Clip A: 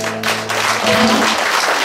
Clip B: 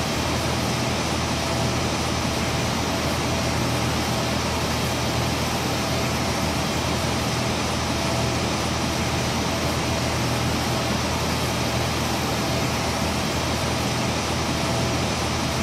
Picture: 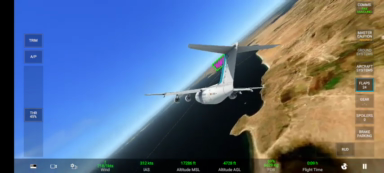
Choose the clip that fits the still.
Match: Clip B